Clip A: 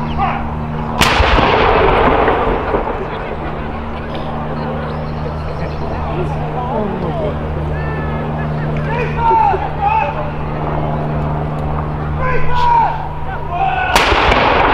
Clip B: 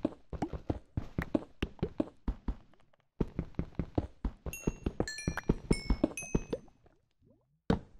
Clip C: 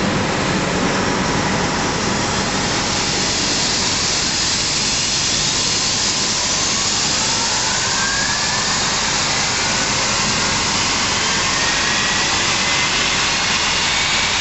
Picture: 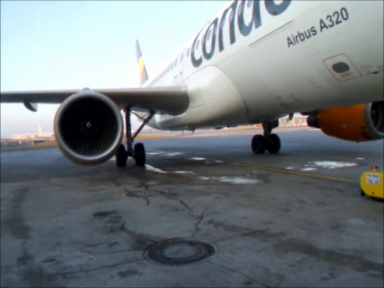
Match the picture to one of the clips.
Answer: C